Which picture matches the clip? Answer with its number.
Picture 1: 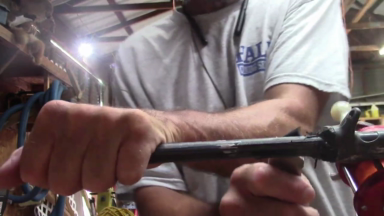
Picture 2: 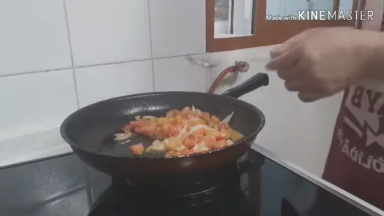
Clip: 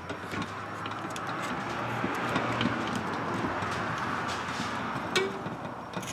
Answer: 1